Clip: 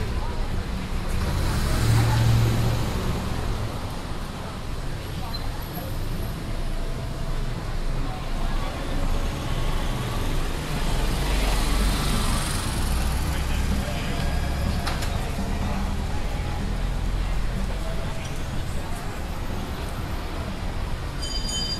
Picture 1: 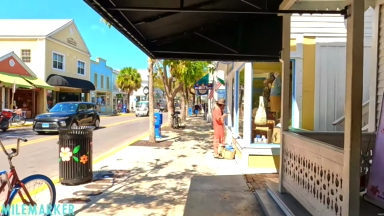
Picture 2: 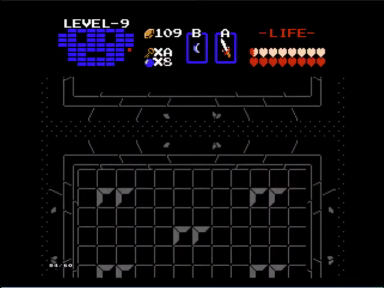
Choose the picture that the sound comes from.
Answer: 1